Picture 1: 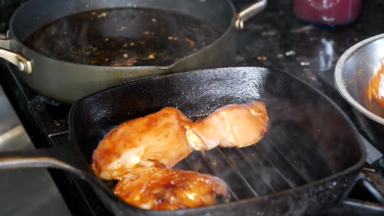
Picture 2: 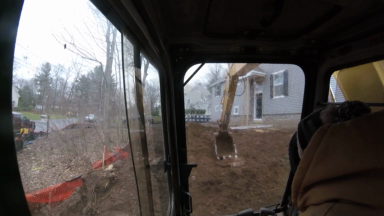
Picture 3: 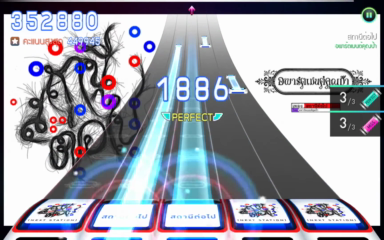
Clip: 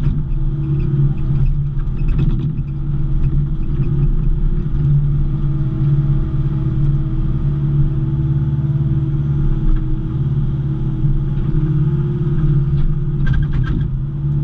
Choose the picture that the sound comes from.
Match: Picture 2